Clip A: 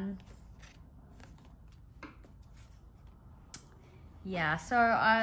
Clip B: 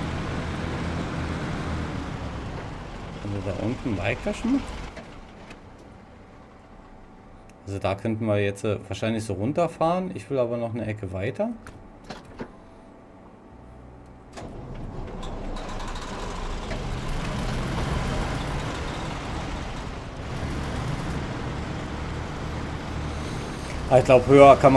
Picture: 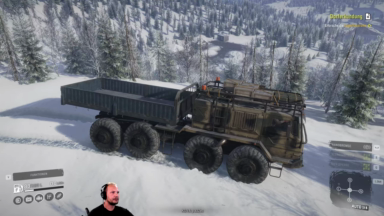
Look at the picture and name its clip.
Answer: B